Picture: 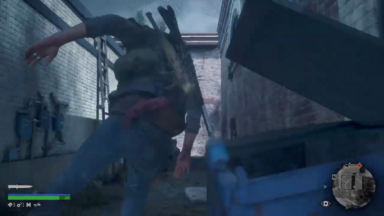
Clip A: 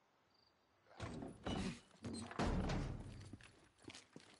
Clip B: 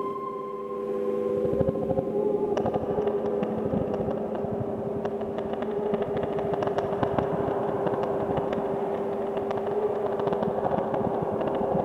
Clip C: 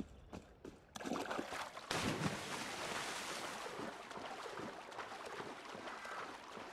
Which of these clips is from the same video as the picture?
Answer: A